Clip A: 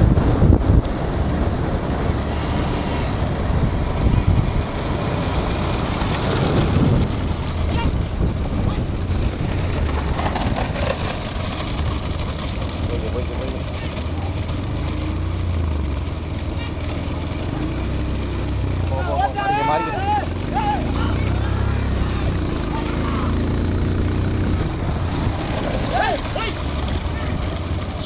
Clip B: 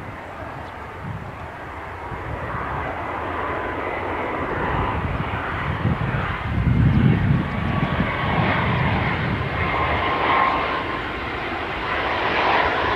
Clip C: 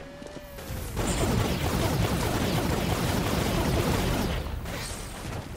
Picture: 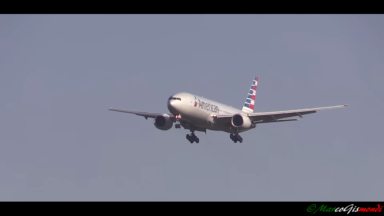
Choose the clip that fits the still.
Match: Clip B